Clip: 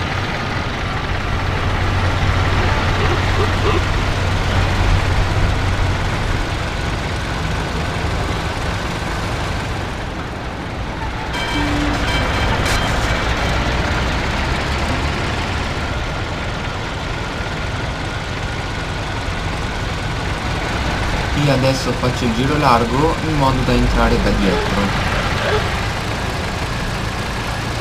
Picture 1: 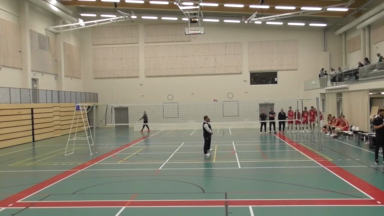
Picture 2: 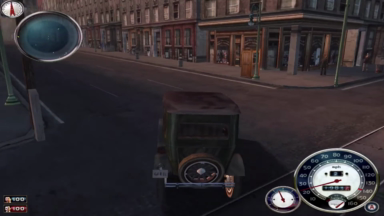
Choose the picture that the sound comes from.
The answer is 2